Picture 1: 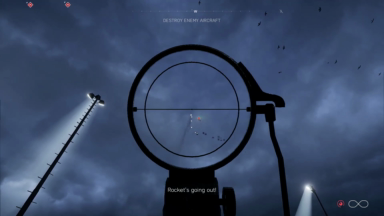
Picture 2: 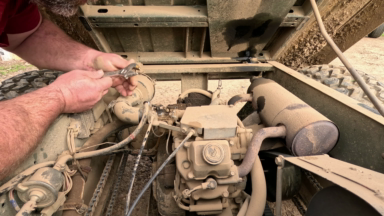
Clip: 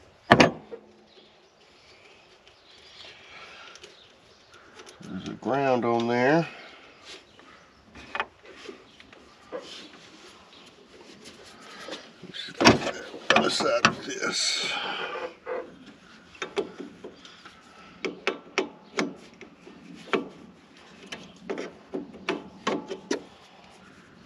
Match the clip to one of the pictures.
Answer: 2